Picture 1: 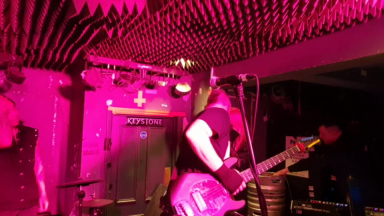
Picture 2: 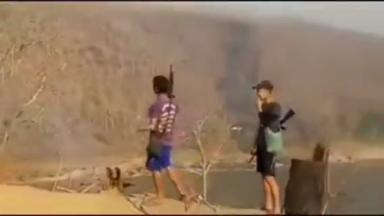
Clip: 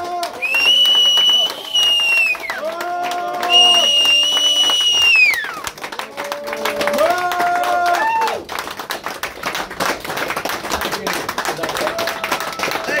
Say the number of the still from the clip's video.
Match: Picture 1